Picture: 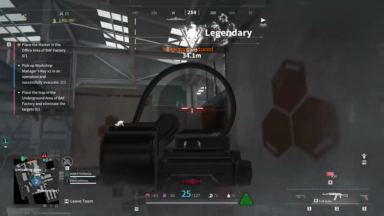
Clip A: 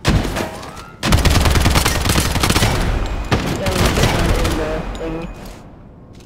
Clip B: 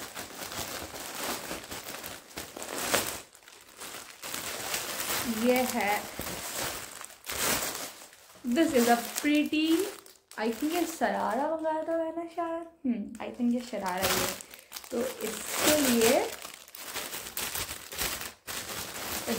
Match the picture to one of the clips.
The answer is A